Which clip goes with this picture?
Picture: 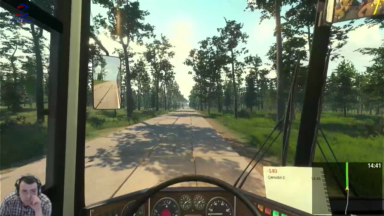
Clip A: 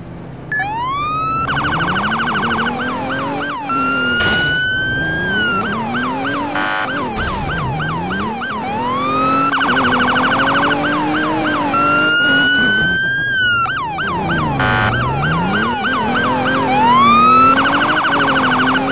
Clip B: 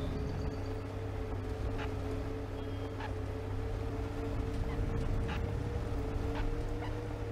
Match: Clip B